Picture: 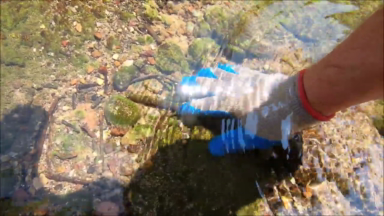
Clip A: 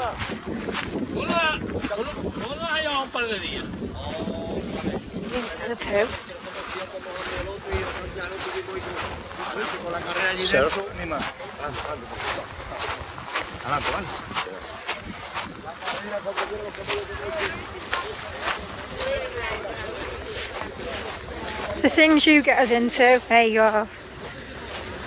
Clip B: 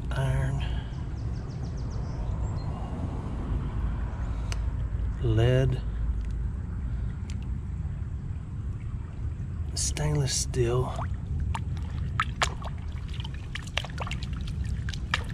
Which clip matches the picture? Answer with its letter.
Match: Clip B